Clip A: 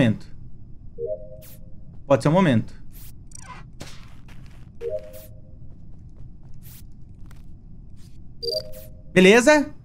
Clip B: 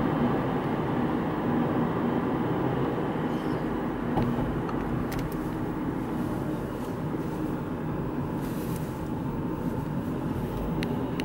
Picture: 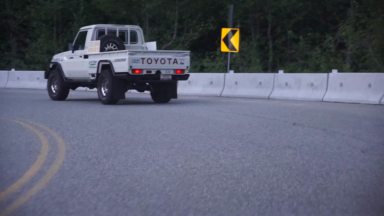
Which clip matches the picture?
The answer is B